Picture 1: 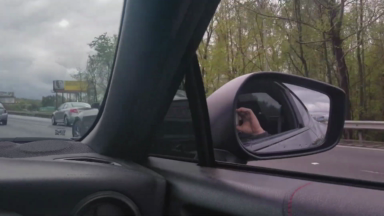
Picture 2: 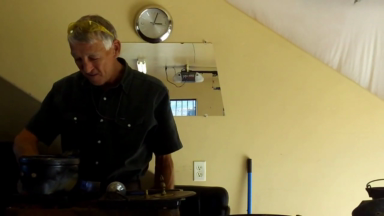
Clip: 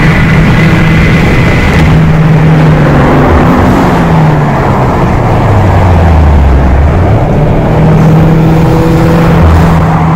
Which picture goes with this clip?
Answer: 1